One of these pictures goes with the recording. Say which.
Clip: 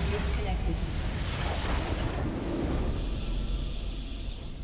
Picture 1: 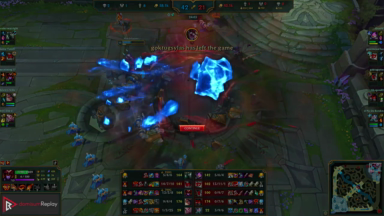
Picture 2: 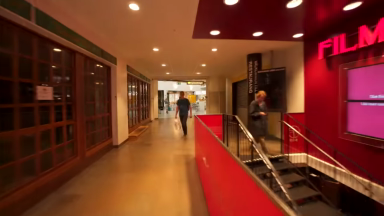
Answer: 1